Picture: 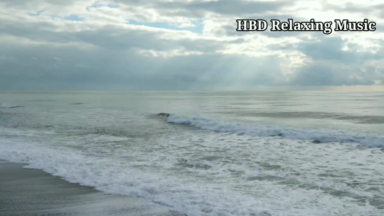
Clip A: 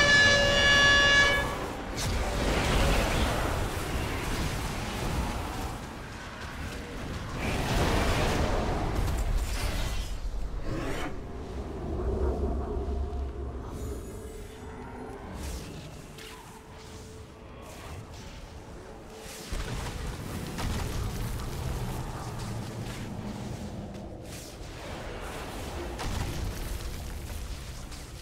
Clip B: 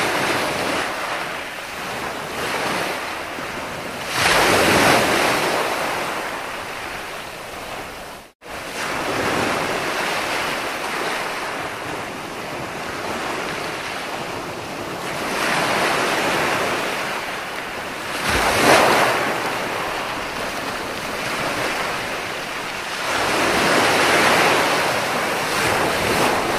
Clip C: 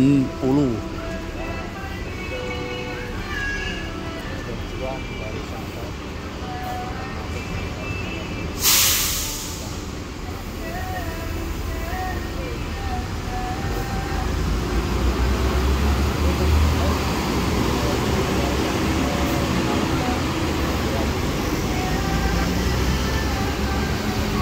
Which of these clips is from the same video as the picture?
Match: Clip B